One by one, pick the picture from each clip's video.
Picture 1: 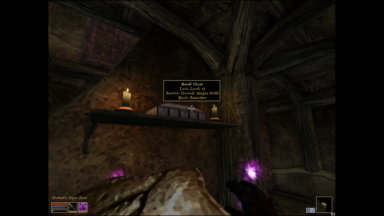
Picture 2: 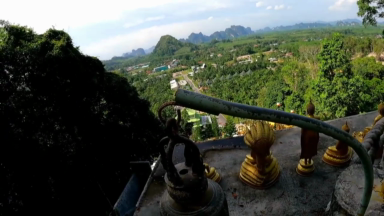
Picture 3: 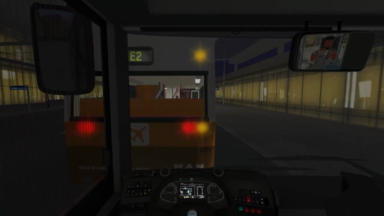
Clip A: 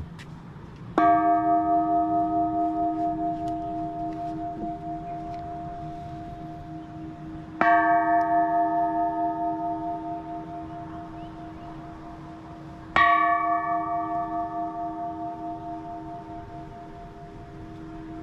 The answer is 2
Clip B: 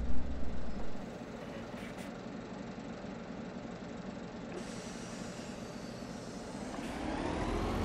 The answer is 3